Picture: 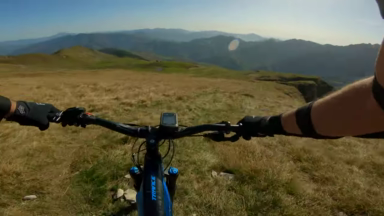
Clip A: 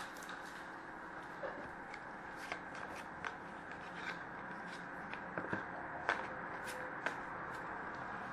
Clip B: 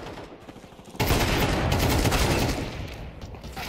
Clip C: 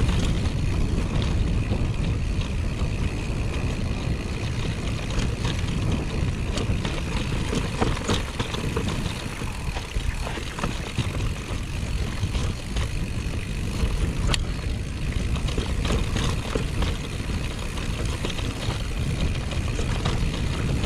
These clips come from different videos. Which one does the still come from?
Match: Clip C